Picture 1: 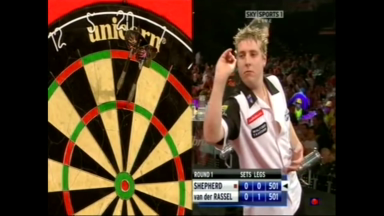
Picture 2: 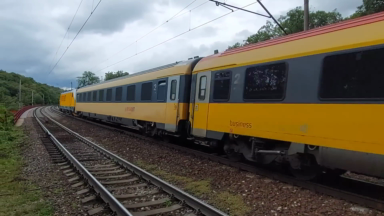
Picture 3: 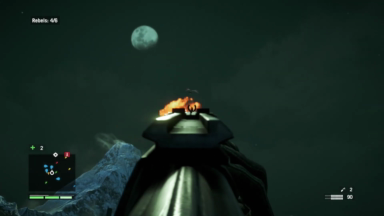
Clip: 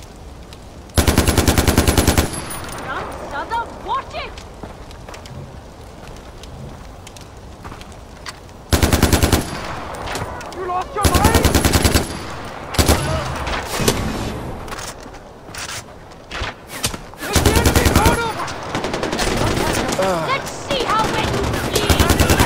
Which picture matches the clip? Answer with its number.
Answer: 3